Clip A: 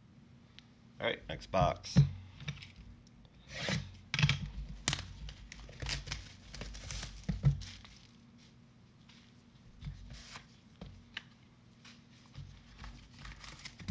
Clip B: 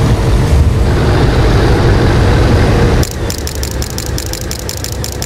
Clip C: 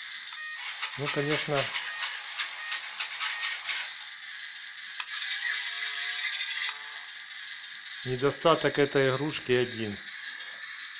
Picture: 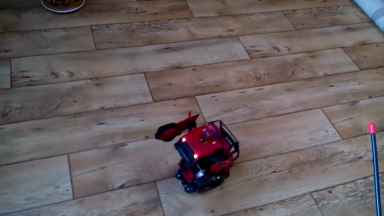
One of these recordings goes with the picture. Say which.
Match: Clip C